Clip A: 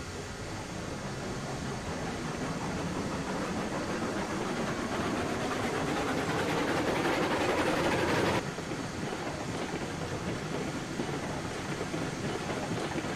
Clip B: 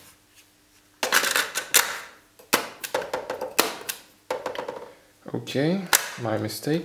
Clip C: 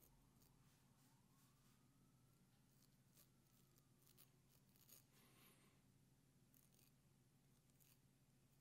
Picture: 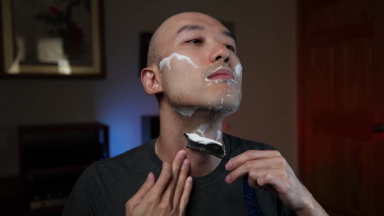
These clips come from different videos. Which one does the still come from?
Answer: C